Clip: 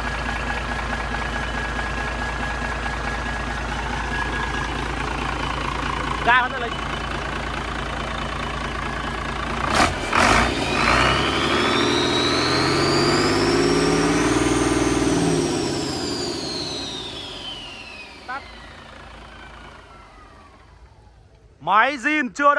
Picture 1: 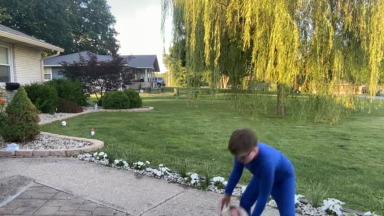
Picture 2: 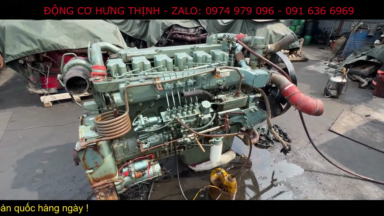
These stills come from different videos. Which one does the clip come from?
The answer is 2